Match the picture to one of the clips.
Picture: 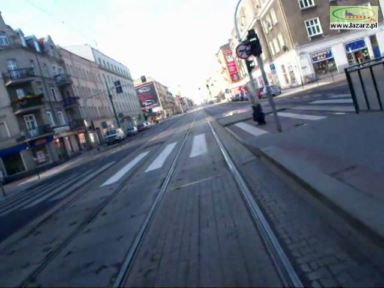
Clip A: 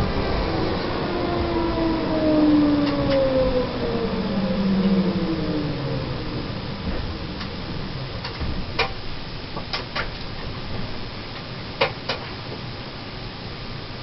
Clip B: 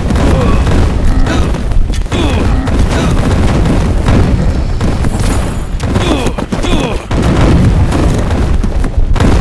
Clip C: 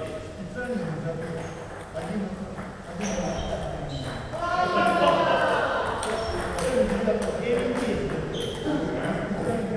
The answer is A